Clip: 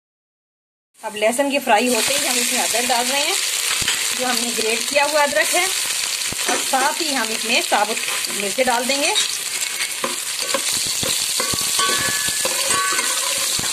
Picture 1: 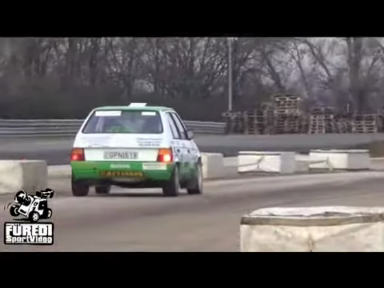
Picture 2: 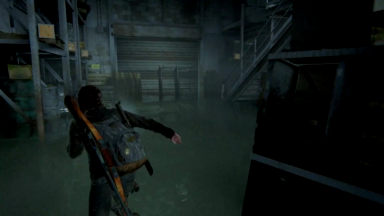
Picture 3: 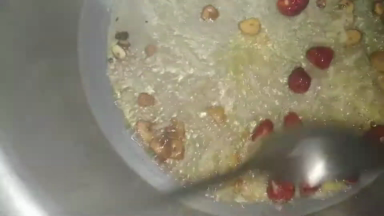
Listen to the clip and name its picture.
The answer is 3